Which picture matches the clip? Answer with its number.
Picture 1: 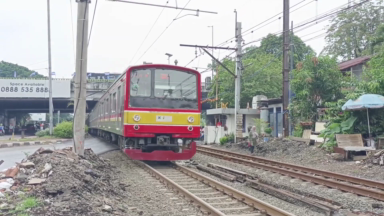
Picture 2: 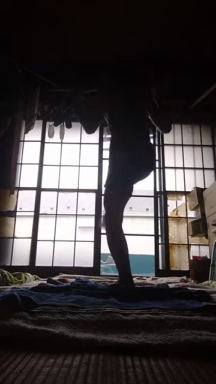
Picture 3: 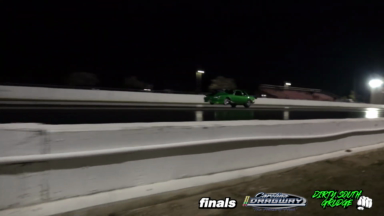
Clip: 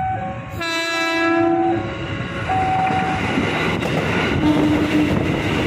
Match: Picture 1